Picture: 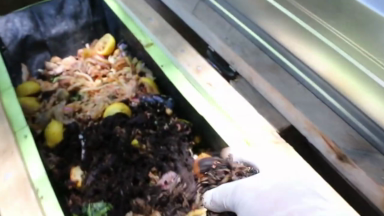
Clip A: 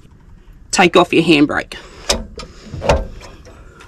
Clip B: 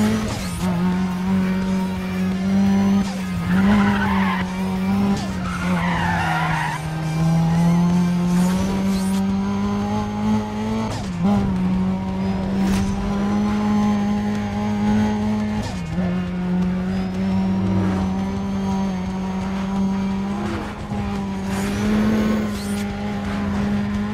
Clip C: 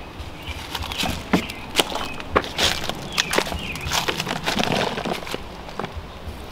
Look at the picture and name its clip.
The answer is C